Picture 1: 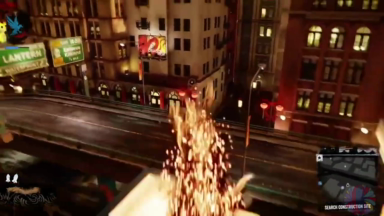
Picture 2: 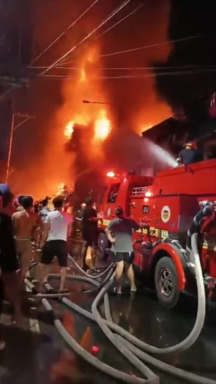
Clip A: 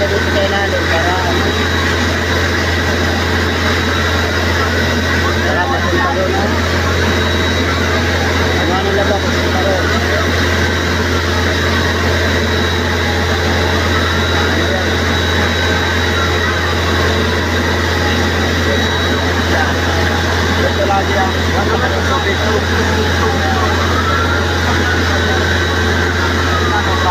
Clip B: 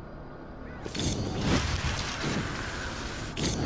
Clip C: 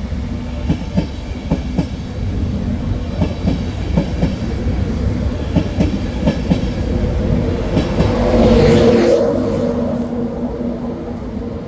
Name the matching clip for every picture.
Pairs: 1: B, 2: A